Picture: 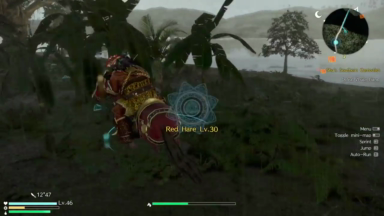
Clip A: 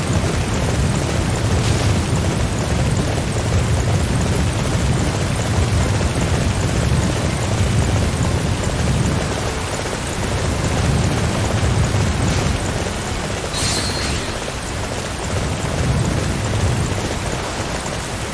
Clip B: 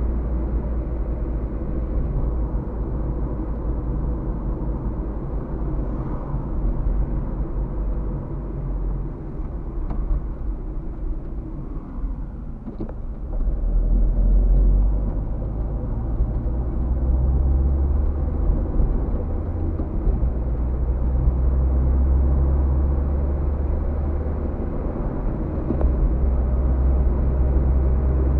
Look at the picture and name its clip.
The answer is A